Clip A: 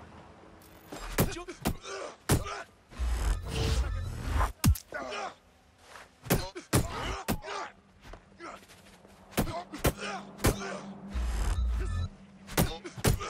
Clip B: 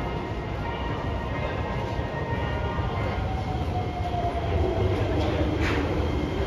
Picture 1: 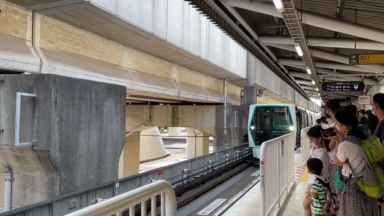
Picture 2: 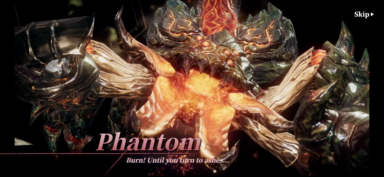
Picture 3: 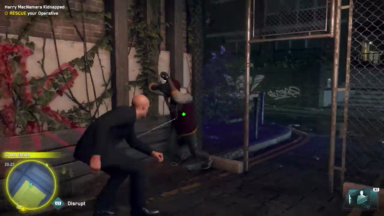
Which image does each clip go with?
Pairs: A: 3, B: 1